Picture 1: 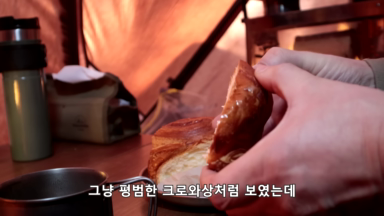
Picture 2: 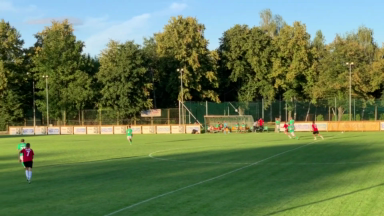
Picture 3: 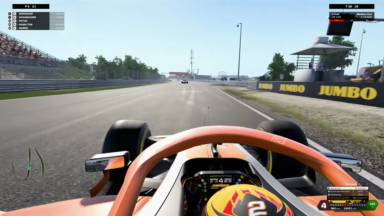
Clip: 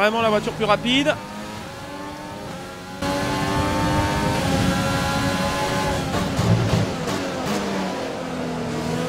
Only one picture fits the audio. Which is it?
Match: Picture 3